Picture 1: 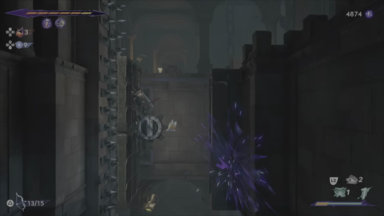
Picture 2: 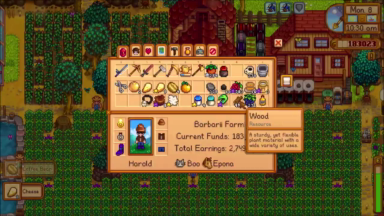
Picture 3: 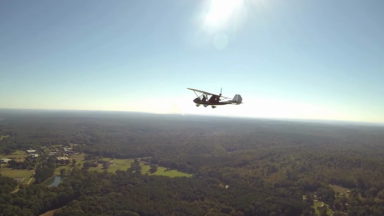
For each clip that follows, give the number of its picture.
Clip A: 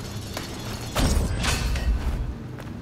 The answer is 1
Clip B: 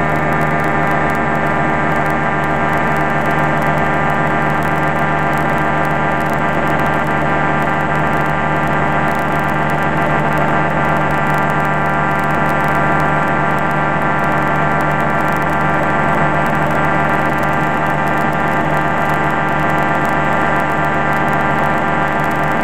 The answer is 3